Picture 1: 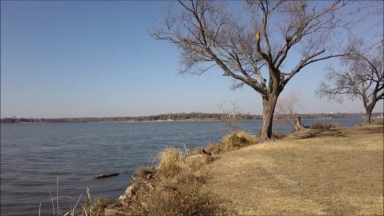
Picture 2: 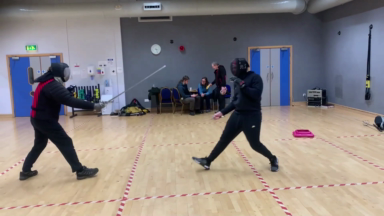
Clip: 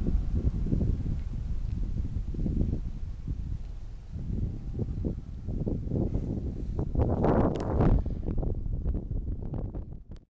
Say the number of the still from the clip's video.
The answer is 1